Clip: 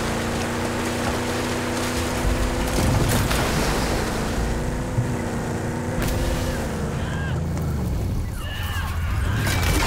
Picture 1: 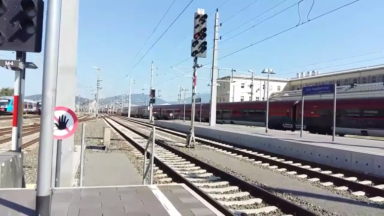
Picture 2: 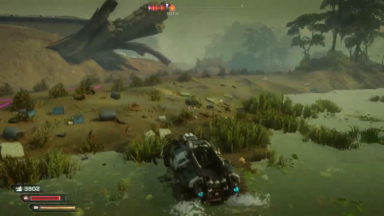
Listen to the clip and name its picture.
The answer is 2